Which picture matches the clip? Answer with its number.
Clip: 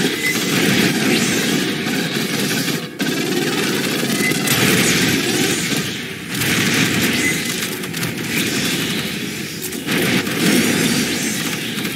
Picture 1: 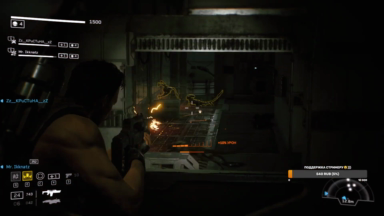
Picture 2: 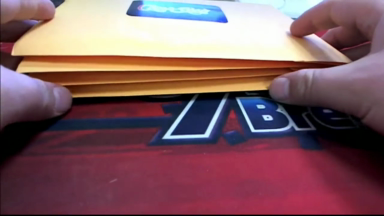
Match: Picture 1